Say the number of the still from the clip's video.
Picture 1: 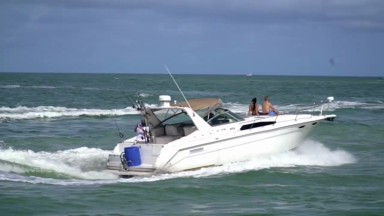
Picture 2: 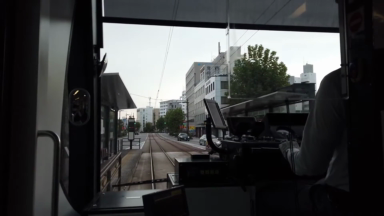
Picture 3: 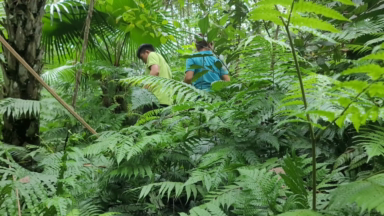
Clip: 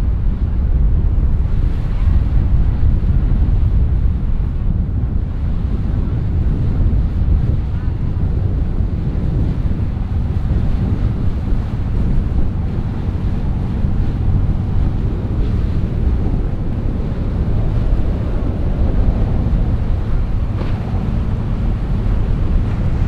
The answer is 1